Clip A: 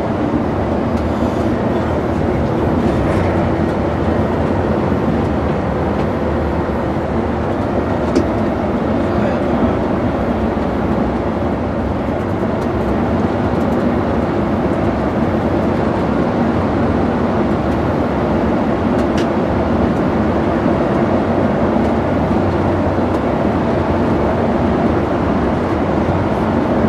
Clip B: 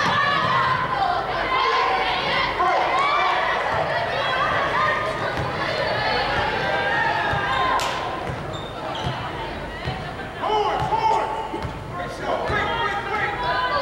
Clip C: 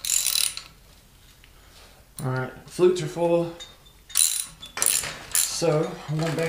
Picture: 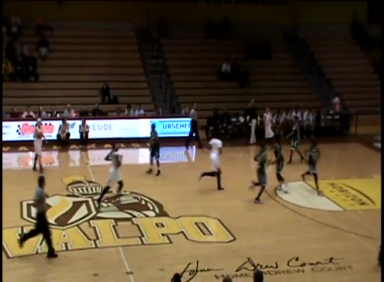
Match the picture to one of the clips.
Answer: B